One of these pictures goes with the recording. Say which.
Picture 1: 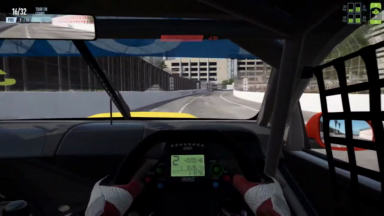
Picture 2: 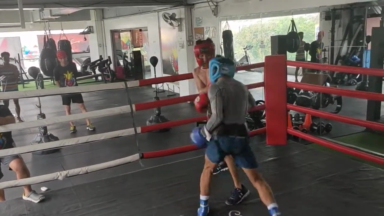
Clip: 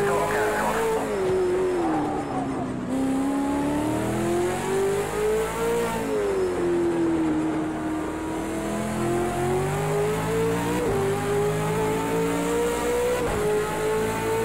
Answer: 1